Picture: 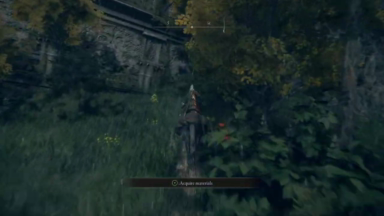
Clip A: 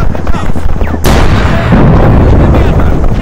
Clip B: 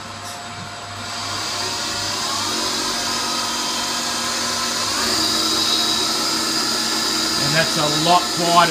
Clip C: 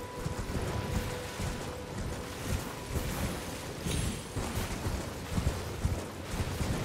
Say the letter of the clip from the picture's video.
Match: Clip C